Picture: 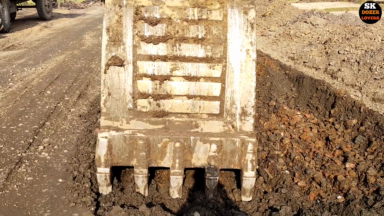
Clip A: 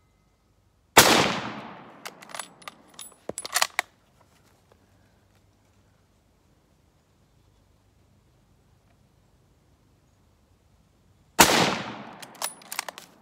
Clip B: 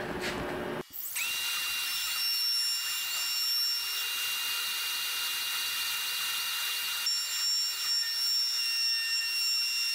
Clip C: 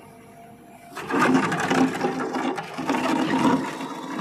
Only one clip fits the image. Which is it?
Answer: C